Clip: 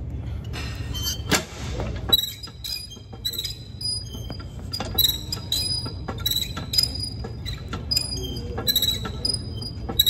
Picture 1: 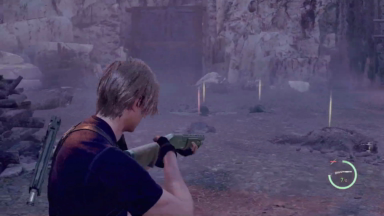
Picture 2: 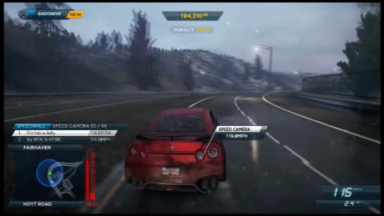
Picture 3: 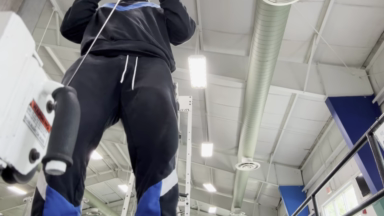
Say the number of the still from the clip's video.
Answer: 3